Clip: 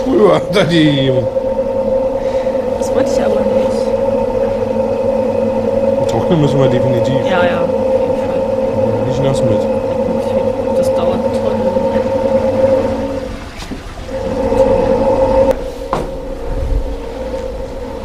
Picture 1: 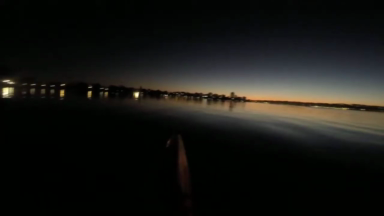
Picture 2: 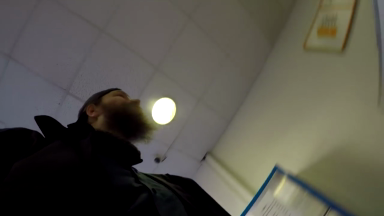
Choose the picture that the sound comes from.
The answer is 2